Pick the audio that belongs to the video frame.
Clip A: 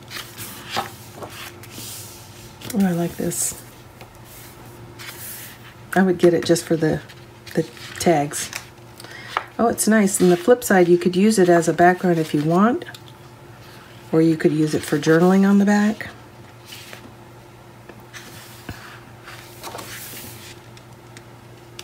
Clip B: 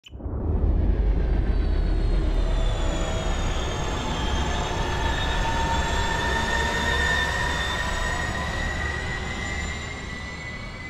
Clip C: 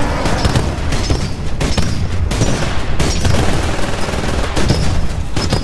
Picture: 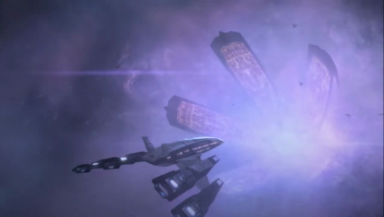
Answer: B